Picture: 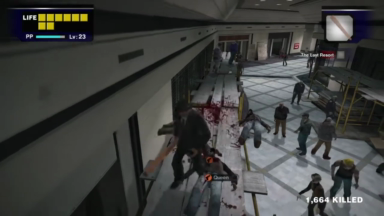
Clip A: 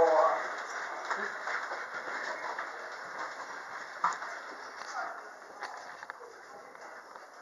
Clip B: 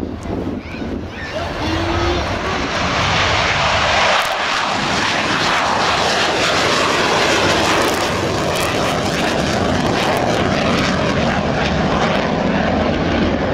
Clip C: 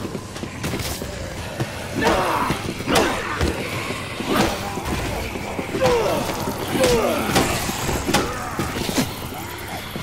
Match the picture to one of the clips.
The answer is C